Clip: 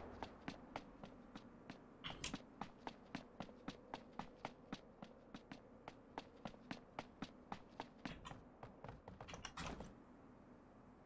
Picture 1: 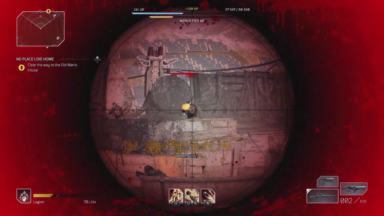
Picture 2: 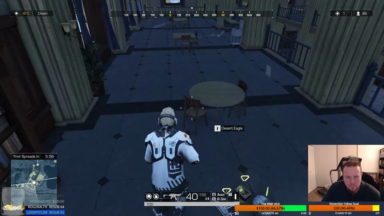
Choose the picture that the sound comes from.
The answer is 2